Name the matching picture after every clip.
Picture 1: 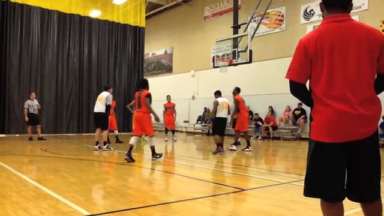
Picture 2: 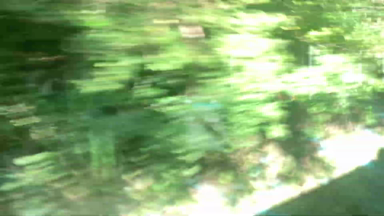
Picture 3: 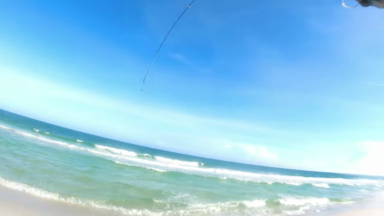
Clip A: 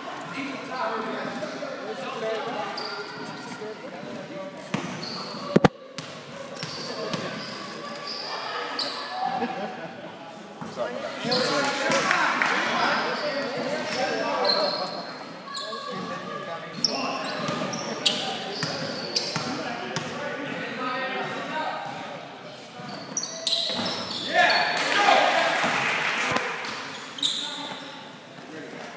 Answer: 1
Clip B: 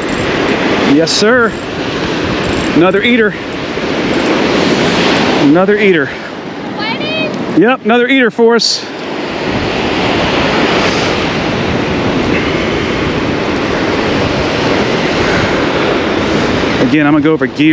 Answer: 3